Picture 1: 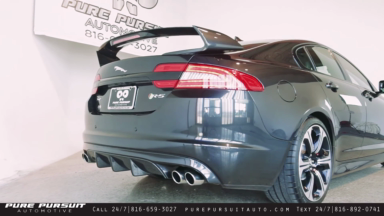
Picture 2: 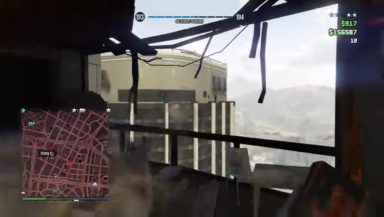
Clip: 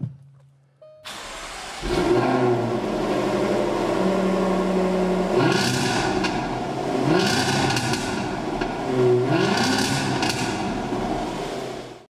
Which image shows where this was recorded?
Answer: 1